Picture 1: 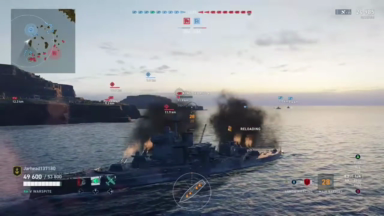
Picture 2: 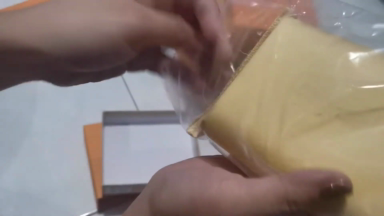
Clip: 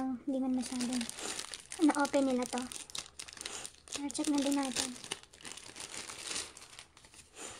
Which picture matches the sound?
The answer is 2